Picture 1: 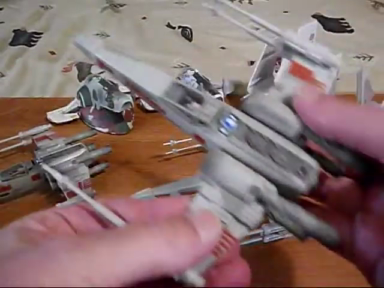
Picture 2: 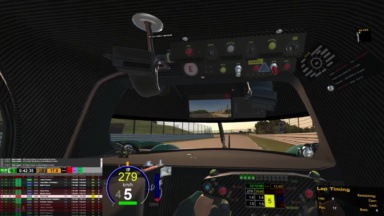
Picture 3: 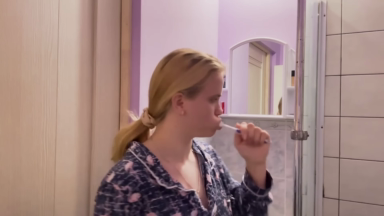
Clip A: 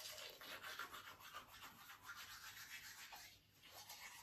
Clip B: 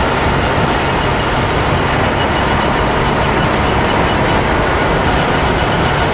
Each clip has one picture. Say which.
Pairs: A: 3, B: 2